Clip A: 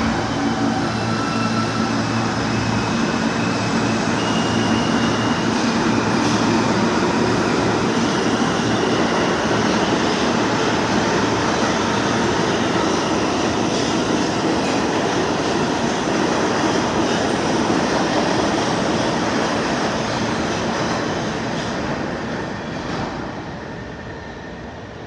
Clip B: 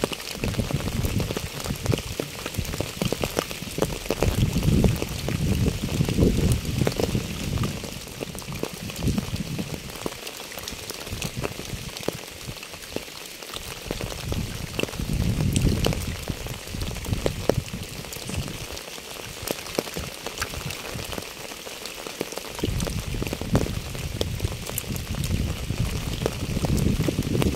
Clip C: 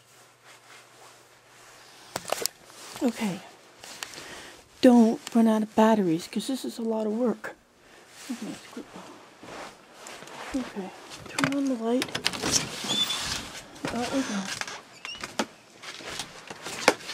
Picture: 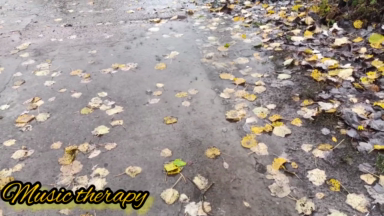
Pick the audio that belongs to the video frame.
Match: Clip B